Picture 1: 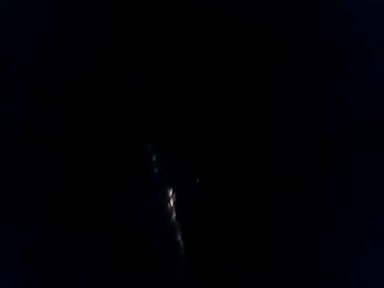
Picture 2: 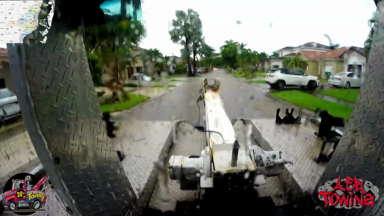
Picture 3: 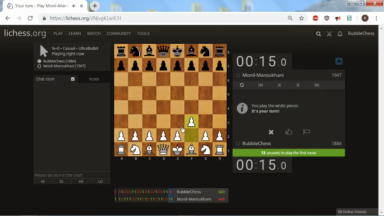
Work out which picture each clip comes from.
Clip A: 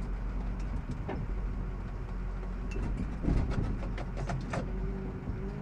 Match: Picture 2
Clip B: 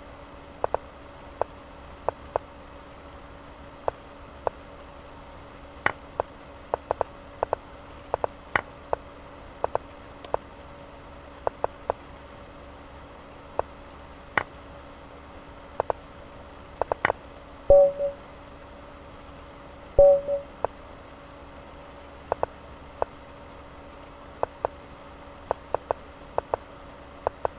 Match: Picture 3